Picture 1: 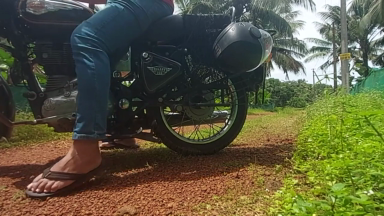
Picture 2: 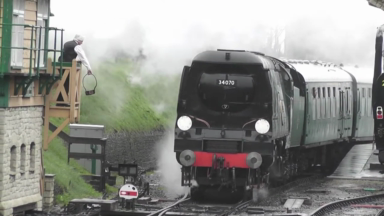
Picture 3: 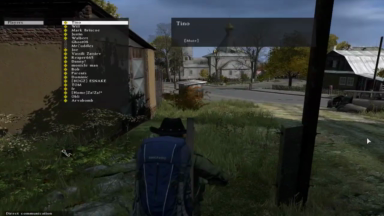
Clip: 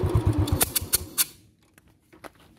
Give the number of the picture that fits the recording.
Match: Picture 1